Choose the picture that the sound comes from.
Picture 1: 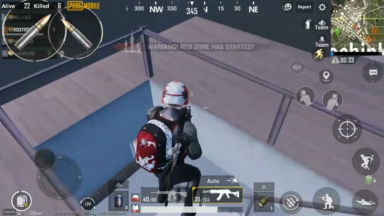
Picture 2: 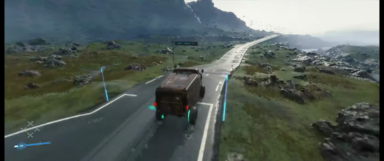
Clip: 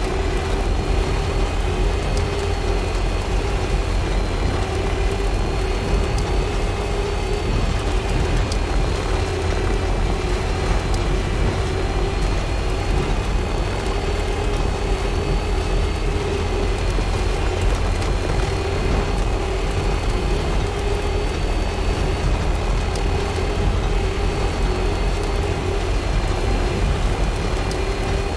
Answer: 2